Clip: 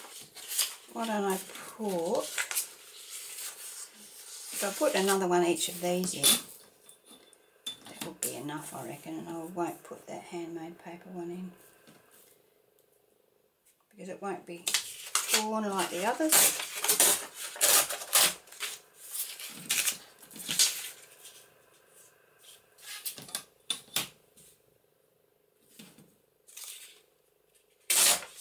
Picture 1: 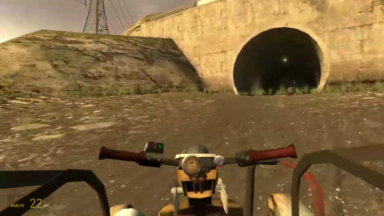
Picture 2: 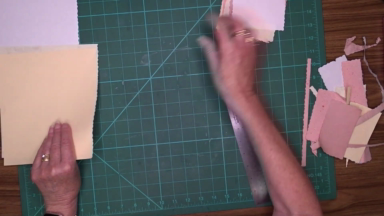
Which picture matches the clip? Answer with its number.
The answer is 2